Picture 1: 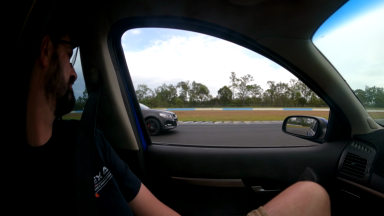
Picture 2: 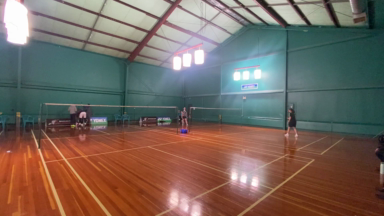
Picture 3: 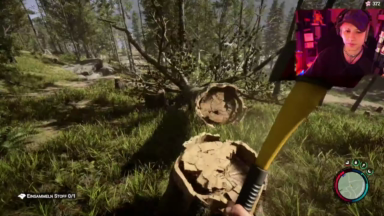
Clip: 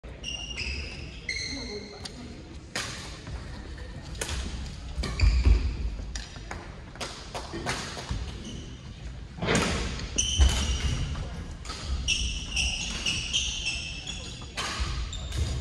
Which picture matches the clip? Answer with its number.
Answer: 2